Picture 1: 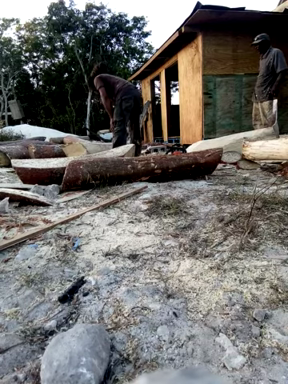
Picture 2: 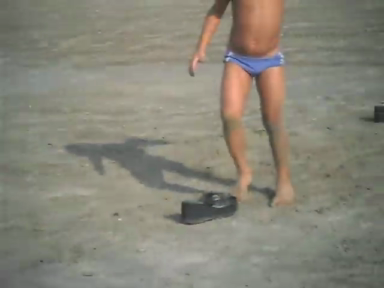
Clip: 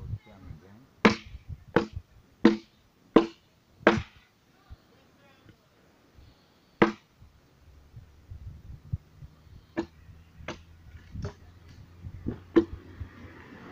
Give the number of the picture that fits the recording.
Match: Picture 1